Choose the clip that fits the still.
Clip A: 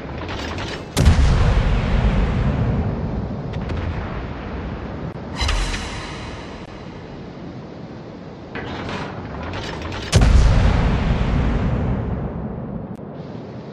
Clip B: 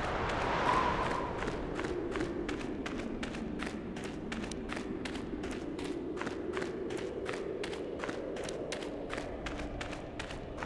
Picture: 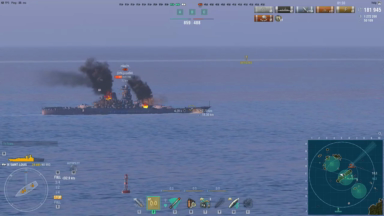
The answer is A